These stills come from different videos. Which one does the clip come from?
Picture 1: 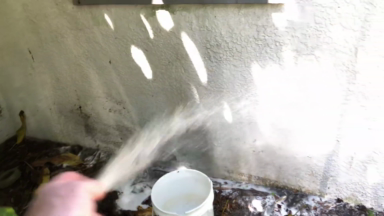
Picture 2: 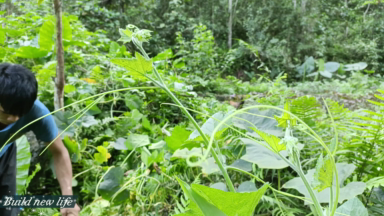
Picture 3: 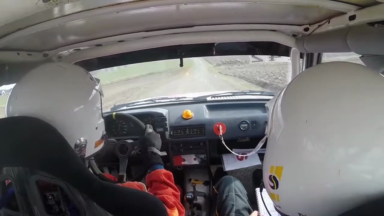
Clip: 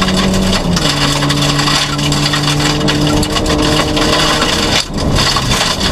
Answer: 3